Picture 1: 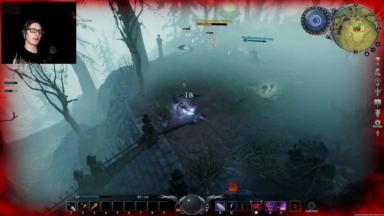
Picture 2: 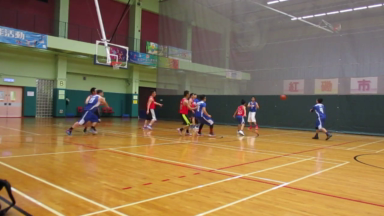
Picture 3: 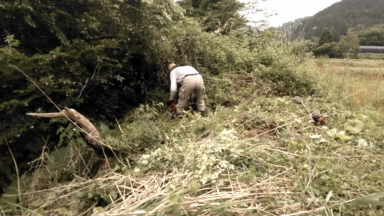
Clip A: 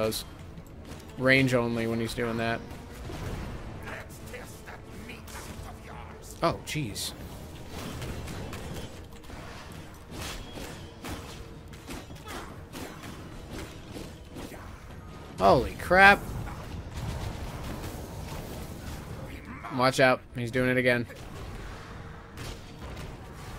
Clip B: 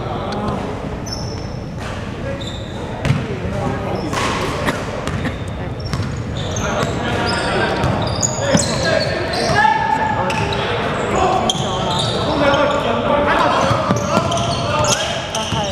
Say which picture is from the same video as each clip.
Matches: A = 1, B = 2